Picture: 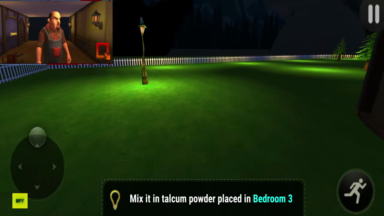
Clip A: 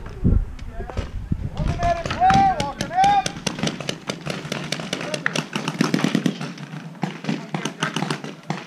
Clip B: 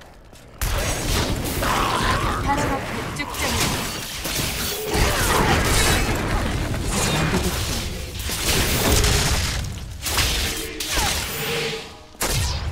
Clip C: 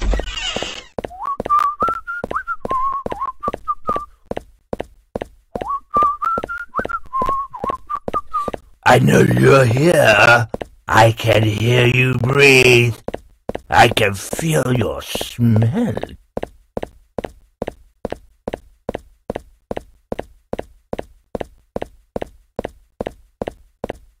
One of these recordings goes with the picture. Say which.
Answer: C